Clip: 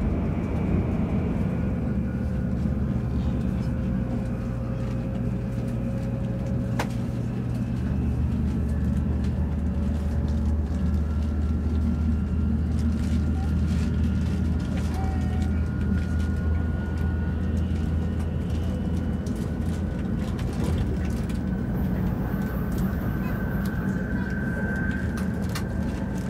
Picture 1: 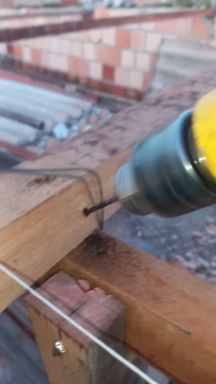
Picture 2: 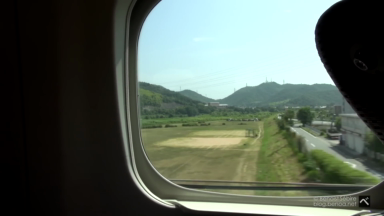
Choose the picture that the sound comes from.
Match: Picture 2